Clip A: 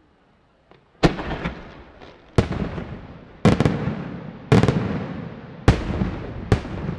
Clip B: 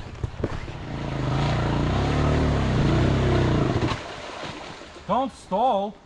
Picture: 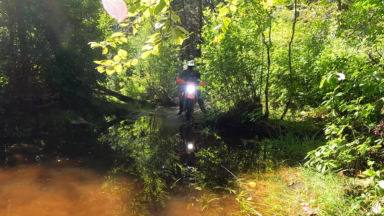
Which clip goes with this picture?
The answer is B